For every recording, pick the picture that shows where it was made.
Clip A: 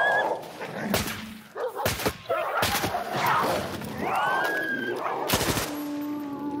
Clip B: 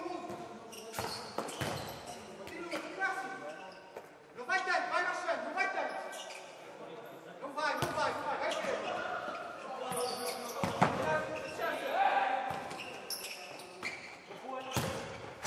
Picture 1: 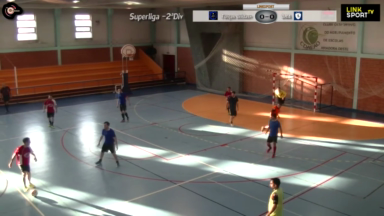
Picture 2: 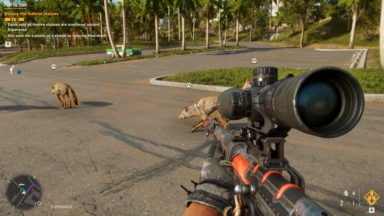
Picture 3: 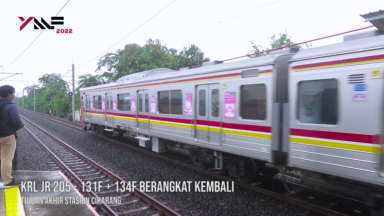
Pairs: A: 2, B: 1